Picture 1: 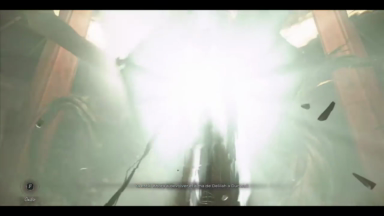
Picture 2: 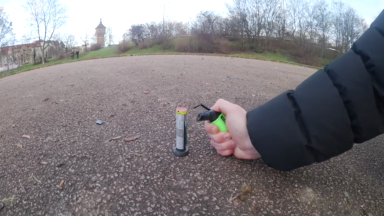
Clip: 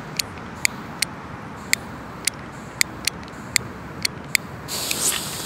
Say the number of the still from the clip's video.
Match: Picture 2